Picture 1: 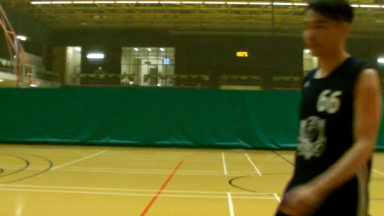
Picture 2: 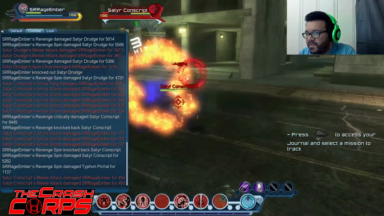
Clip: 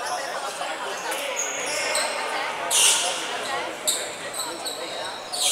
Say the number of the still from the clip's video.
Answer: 1